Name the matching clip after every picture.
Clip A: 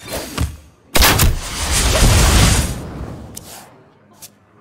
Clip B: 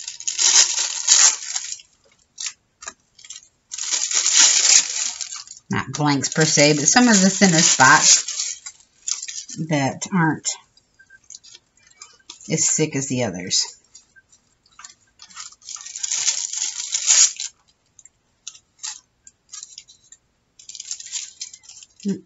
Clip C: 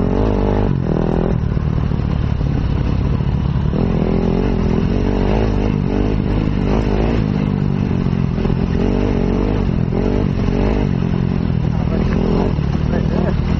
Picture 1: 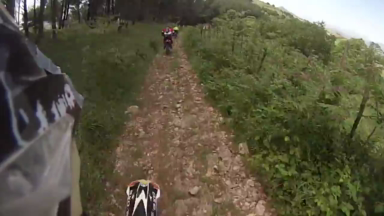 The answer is C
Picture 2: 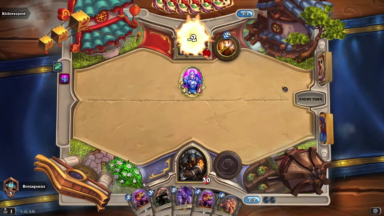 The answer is A